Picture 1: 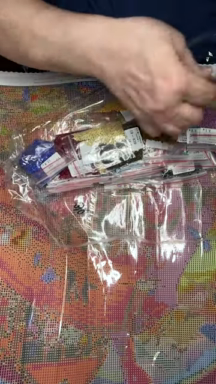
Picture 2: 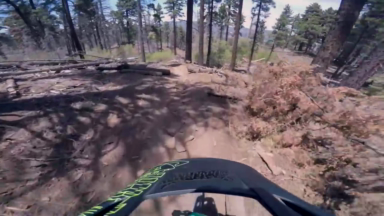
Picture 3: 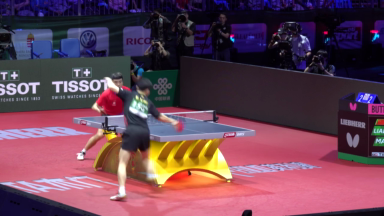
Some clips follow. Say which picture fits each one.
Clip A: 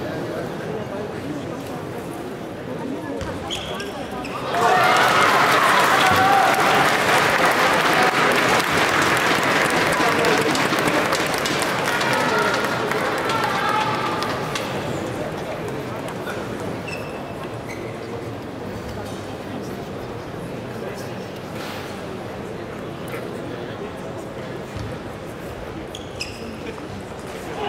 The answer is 3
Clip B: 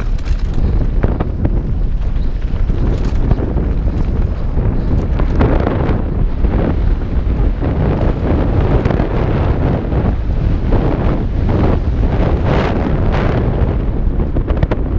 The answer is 2